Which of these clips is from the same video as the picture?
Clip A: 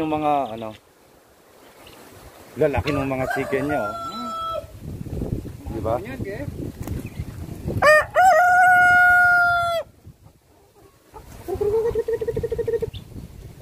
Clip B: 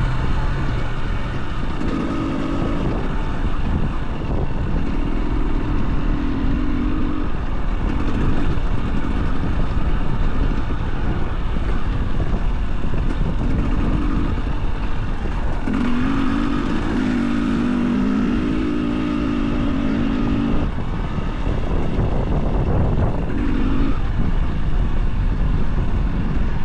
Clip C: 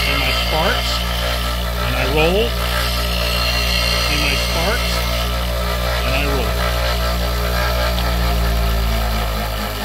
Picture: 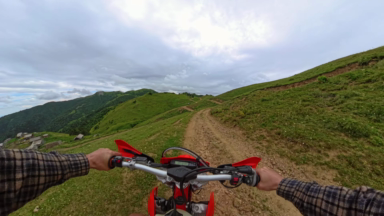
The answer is B